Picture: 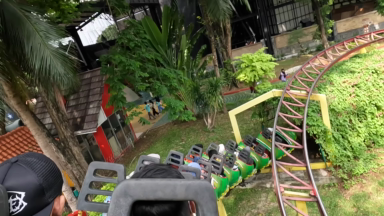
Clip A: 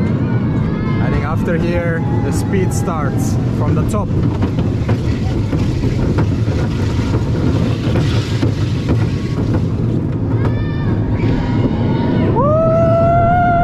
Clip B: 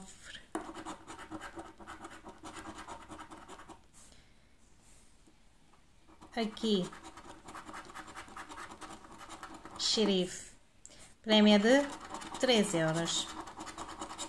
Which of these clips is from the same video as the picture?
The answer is A